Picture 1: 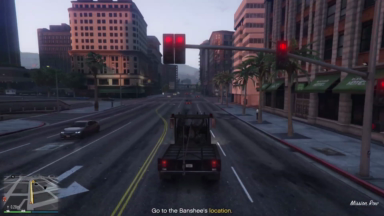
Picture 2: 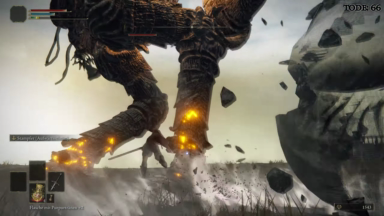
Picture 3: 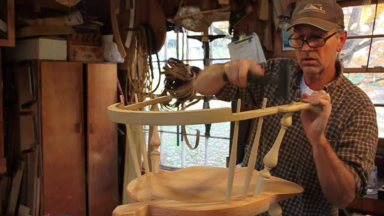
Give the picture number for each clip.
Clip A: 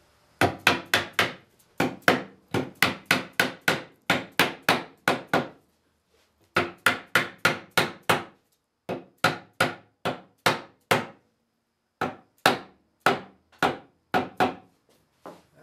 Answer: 3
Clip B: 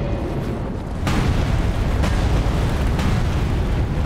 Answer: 2